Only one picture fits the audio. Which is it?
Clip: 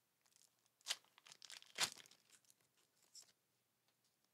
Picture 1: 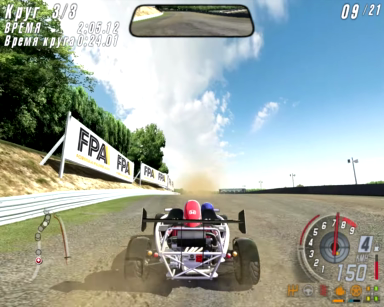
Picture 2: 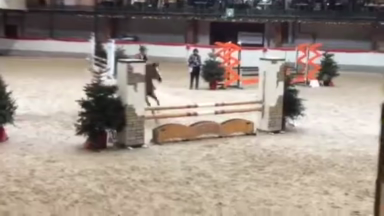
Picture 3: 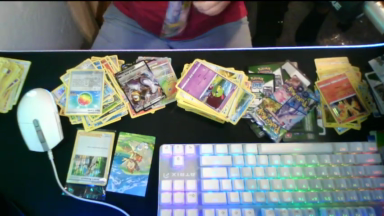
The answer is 3